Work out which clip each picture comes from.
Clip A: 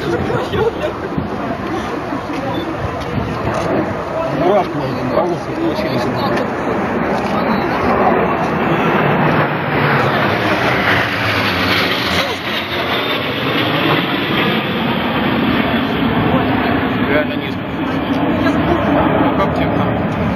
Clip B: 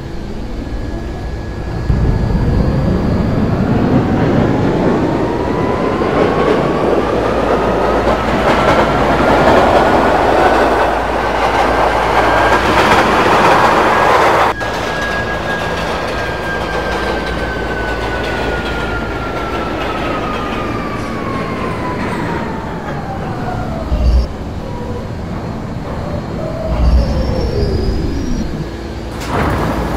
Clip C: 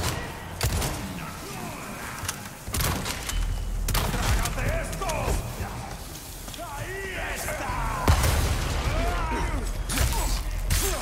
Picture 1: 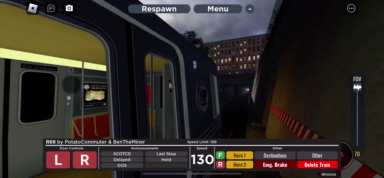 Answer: B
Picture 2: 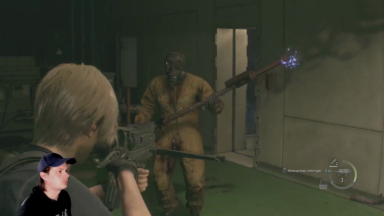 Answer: C